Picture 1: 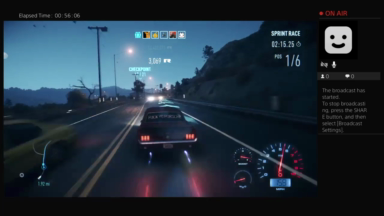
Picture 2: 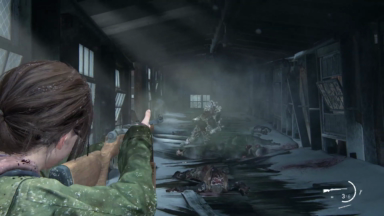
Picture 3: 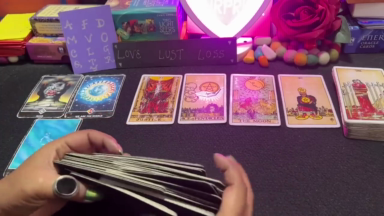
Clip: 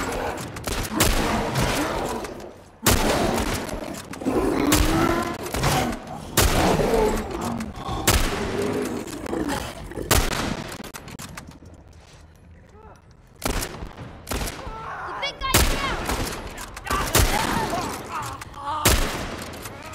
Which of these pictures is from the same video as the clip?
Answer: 2